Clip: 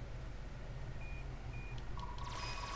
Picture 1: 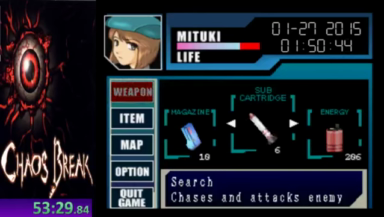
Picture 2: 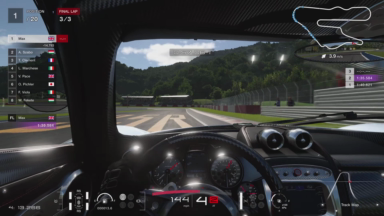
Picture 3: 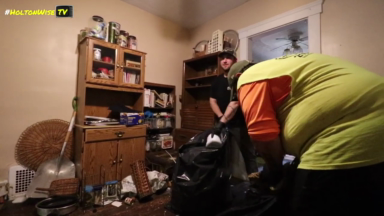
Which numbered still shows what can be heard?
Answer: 1